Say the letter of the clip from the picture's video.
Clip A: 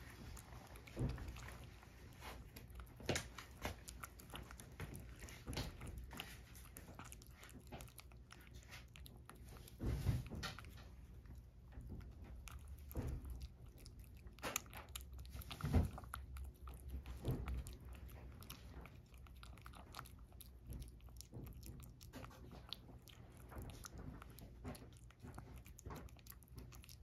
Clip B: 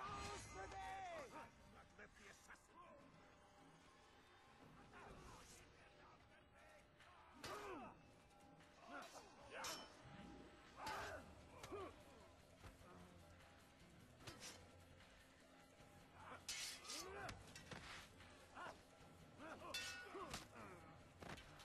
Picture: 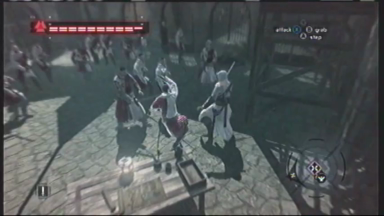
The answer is B